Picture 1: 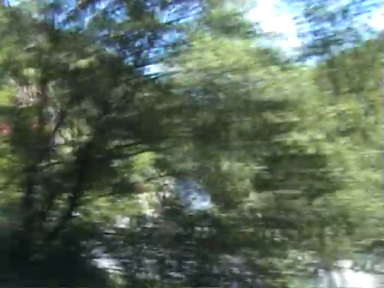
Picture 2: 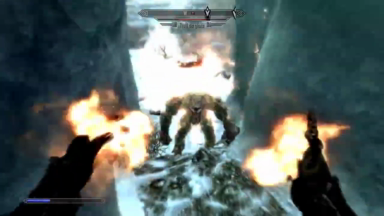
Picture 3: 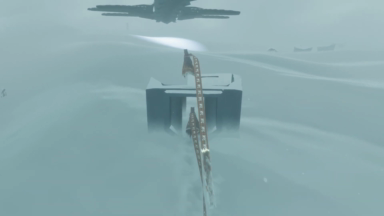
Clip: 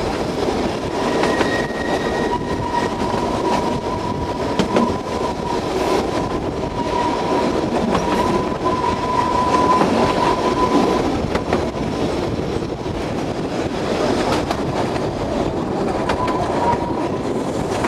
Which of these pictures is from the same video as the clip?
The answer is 1